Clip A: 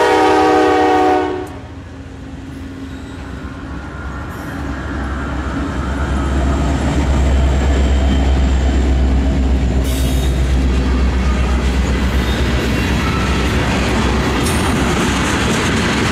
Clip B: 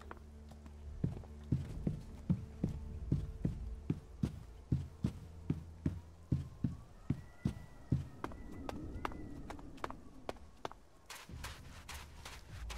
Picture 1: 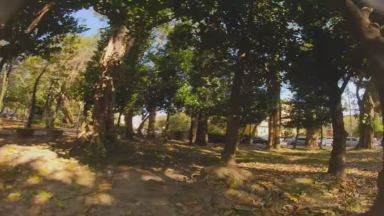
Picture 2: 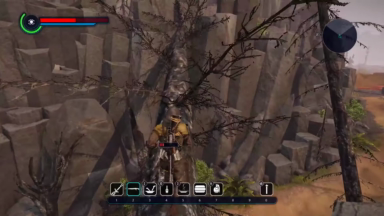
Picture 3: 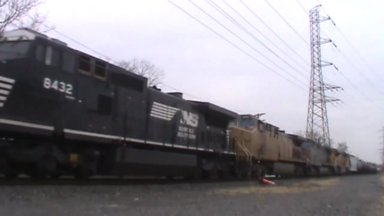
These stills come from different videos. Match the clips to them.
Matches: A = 3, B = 2